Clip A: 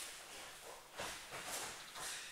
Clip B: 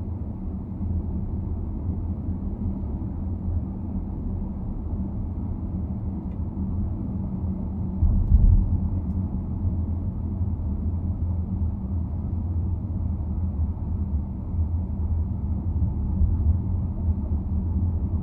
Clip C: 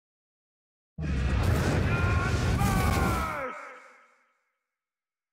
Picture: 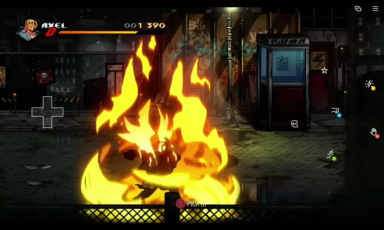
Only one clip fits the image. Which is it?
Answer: C